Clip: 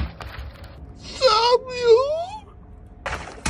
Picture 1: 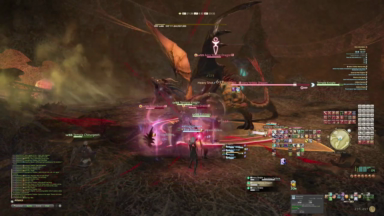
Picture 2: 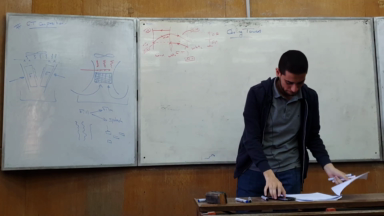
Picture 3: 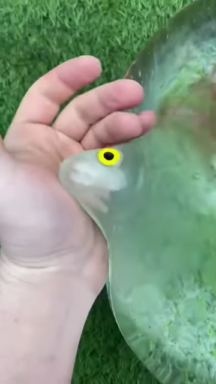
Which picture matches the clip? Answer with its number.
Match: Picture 3